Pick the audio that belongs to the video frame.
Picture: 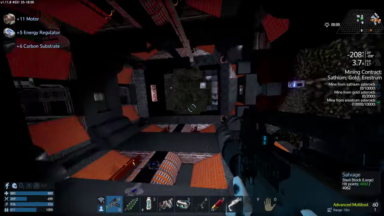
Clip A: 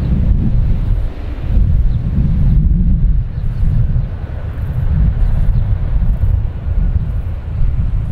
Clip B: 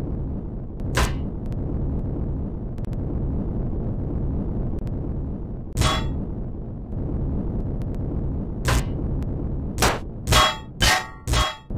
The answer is B